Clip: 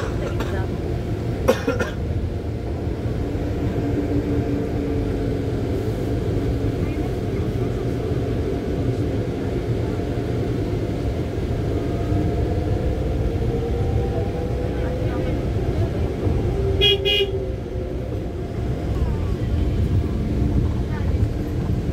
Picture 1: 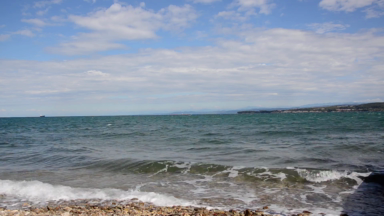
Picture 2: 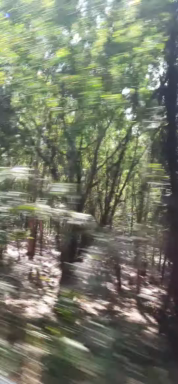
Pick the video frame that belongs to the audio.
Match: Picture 2